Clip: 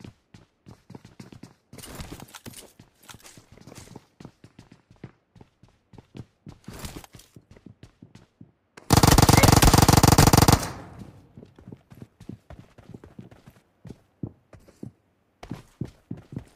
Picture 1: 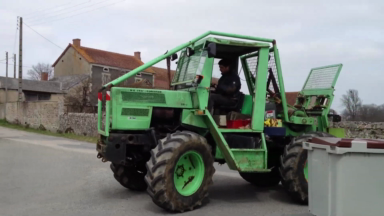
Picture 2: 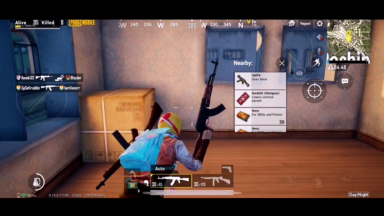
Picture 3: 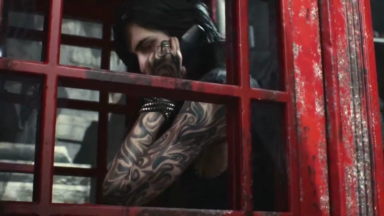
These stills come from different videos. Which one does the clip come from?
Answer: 2